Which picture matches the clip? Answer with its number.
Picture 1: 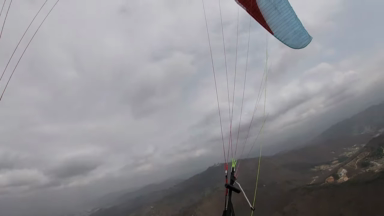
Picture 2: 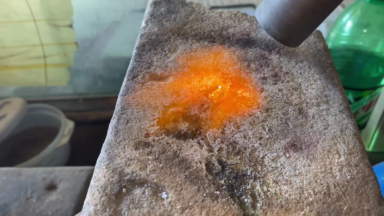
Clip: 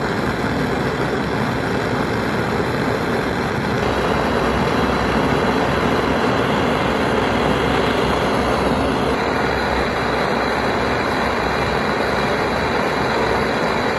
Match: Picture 2